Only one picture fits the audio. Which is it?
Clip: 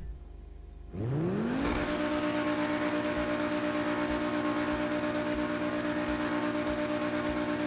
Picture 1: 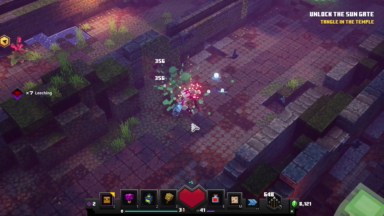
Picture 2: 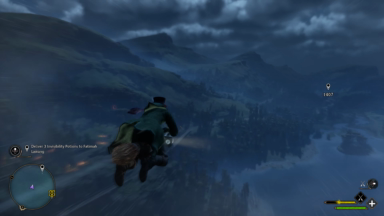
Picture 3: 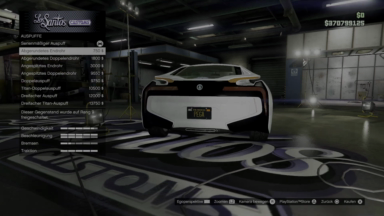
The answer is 3